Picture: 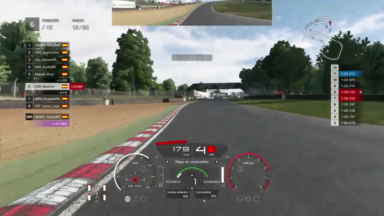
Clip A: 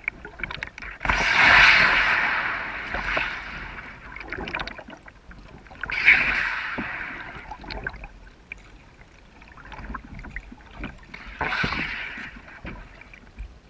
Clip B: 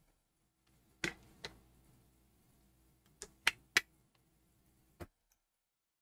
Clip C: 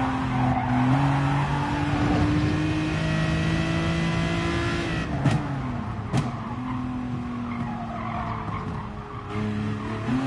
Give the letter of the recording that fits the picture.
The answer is C